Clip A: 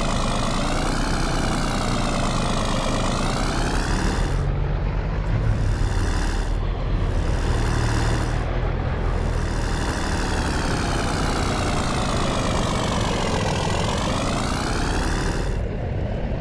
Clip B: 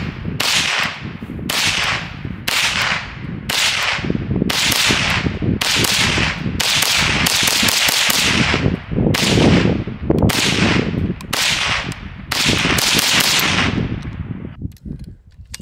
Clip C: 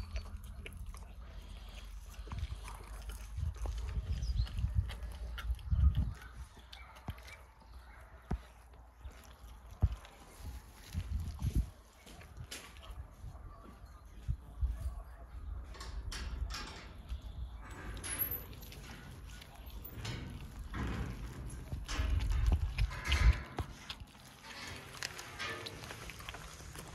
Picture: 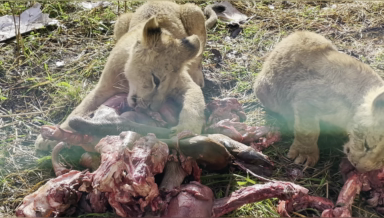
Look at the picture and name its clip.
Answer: C